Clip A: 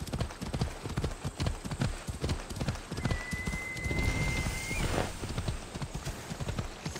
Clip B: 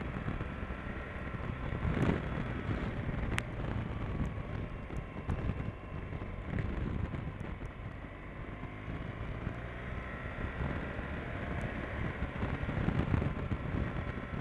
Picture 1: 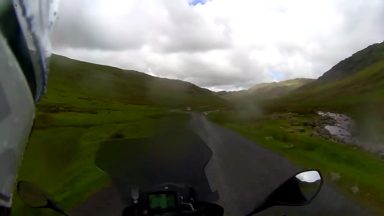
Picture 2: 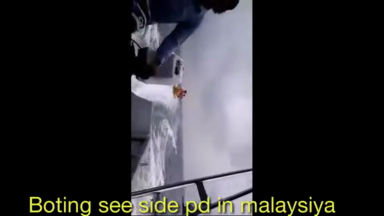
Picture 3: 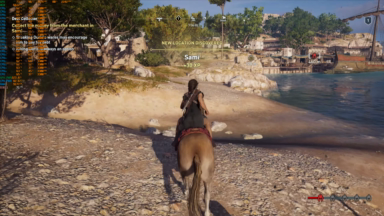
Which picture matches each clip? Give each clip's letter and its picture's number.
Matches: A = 3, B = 1